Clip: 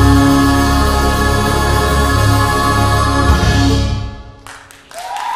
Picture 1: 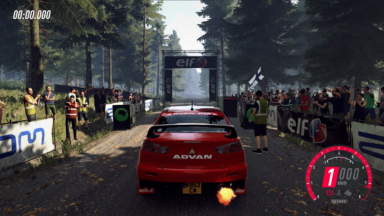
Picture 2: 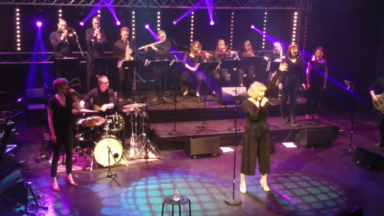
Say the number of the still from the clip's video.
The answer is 2